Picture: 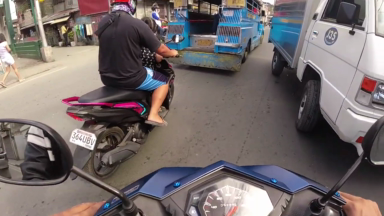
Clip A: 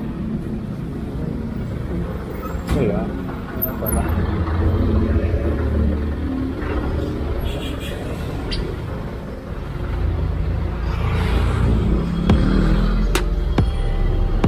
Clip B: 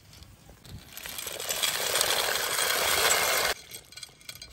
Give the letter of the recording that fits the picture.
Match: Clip A